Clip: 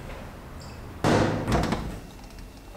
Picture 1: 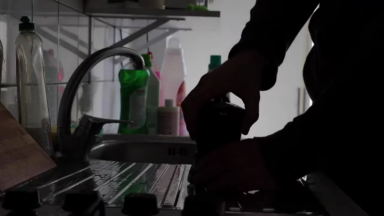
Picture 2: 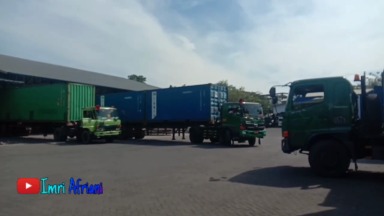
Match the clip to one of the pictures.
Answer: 1